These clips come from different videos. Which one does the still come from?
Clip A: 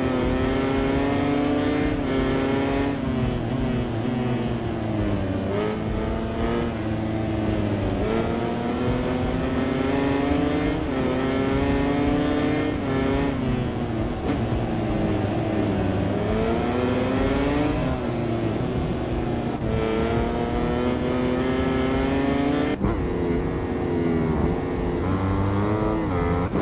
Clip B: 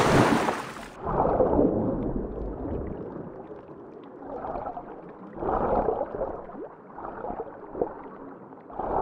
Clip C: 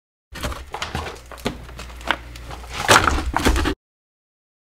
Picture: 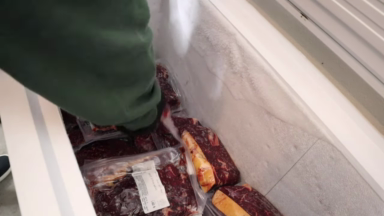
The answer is C